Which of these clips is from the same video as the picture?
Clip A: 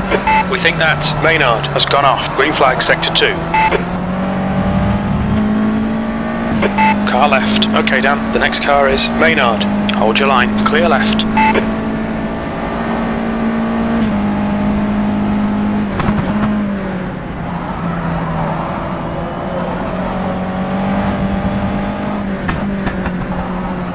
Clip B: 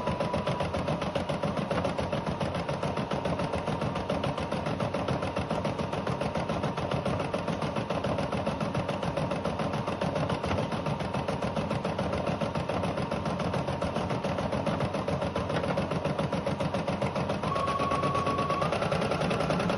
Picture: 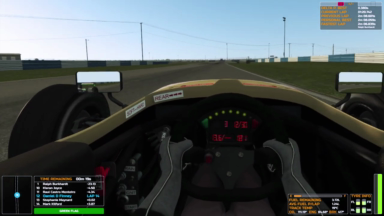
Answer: A